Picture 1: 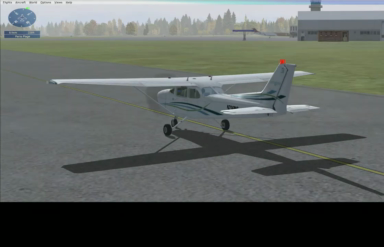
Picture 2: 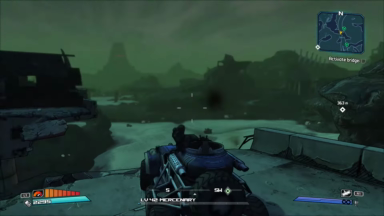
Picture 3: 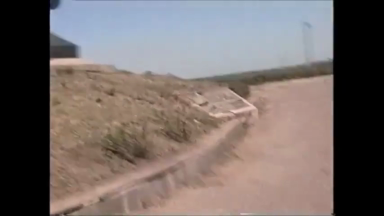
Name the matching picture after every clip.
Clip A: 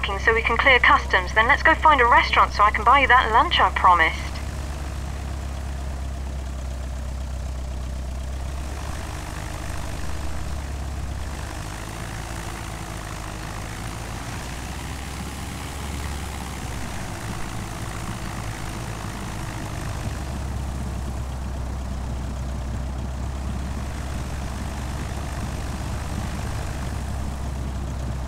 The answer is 1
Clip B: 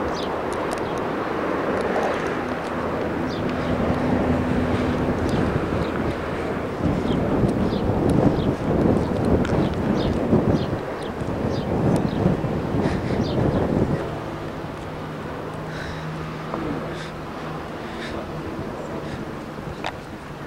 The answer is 3